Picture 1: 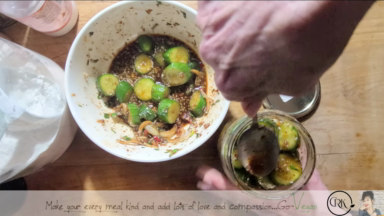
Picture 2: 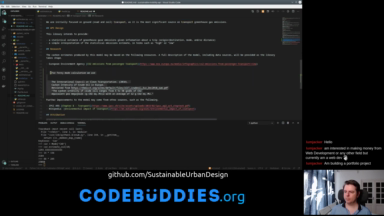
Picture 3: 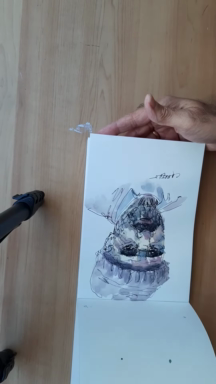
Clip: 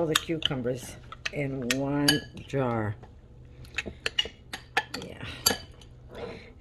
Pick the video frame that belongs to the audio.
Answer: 1